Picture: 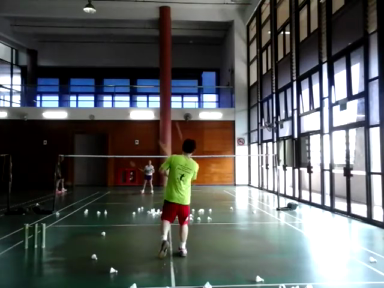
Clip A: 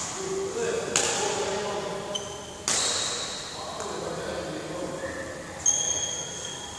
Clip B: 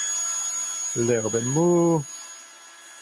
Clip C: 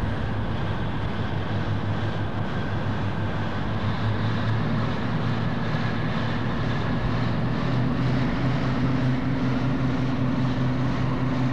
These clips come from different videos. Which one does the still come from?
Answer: A